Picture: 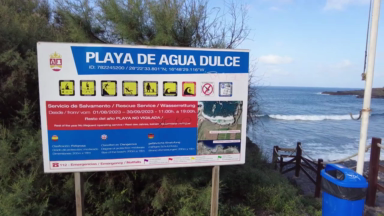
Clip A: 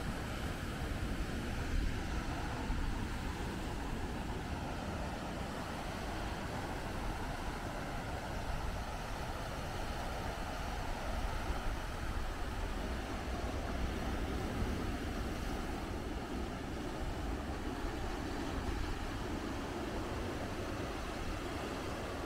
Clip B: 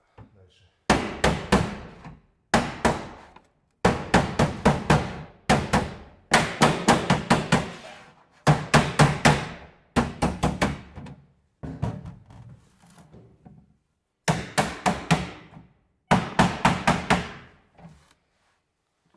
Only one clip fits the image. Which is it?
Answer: A